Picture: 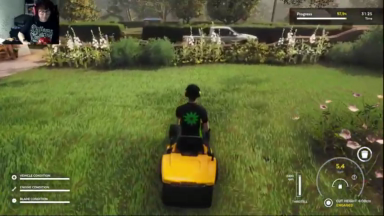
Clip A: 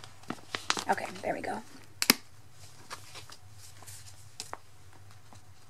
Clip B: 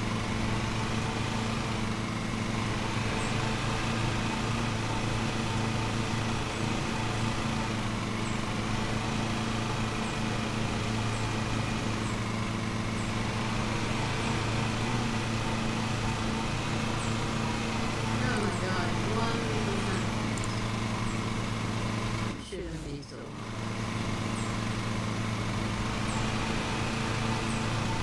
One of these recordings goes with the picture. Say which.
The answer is B